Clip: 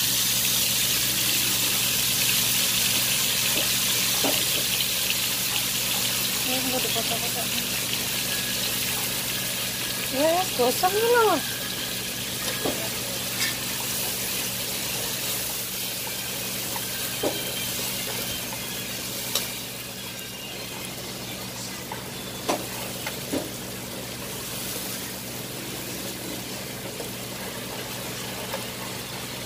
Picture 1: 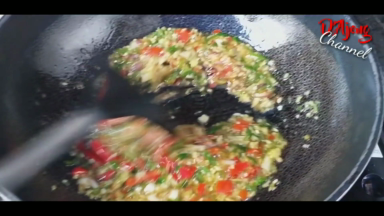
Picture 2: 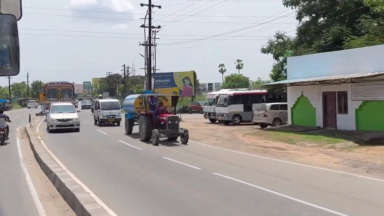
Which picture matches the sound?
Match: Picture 1